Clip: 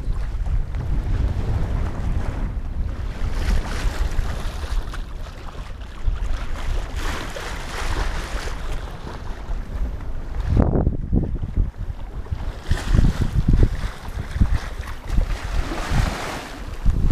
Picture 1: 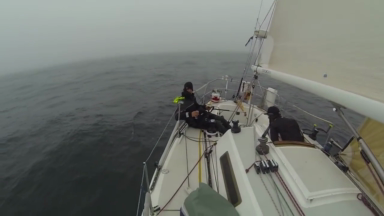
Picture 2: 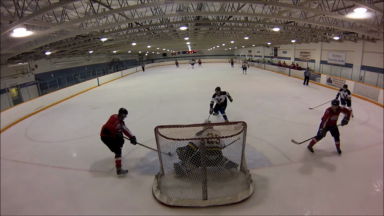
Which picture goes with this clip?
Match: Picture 1